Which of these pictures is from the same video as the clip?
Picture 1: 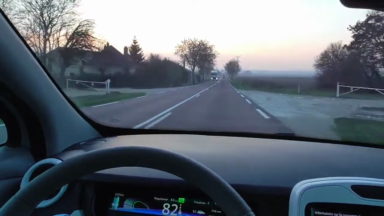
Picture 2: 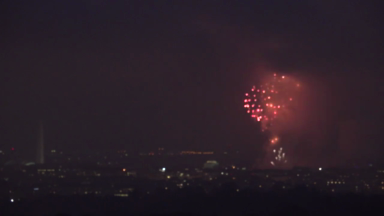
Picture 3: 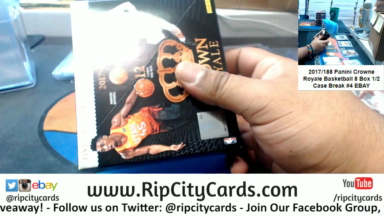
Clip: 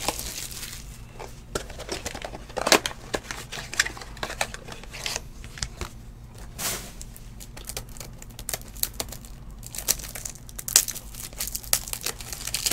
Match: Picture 3